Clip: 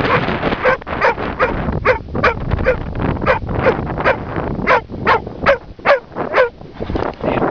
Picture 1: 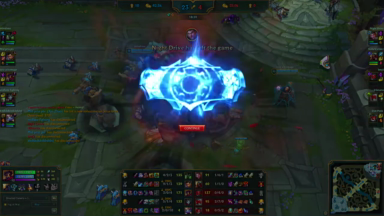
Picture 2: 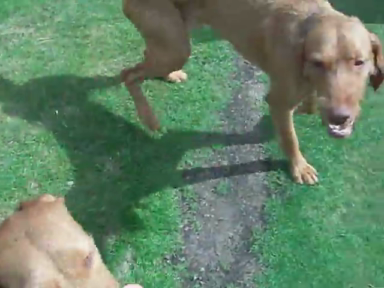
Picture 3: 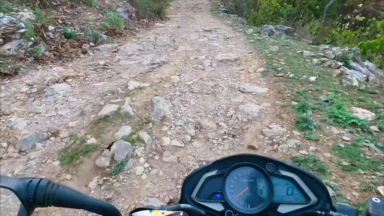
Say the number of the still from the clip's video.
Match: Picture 2